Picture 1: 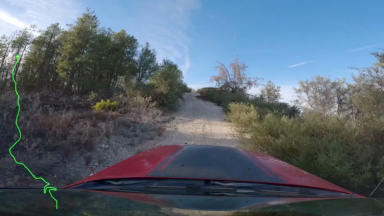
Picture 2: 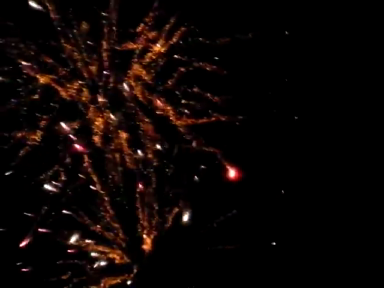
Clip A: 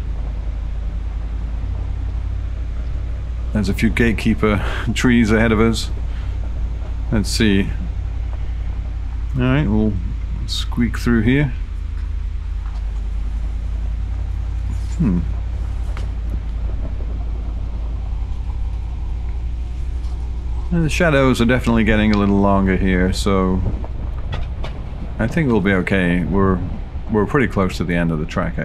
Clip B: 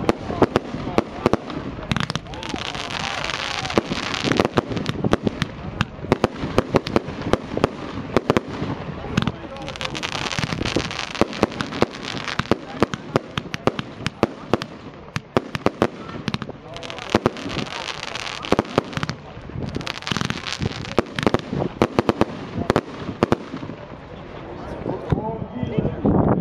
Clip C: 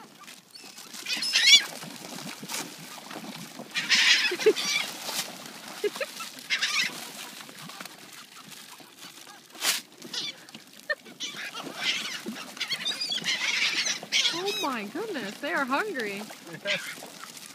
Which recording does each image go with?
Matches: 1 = A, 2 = B